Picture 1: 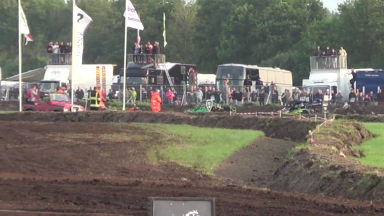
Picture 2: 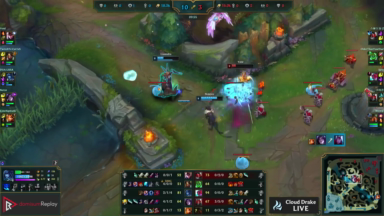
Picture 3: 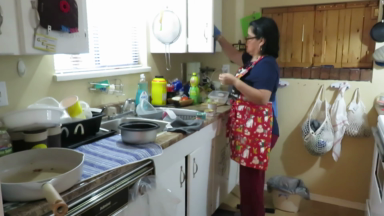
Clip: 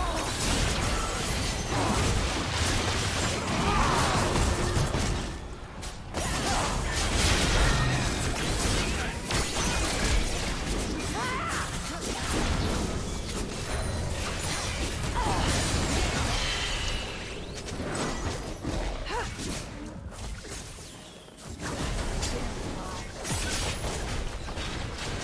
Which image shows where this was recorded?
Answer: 2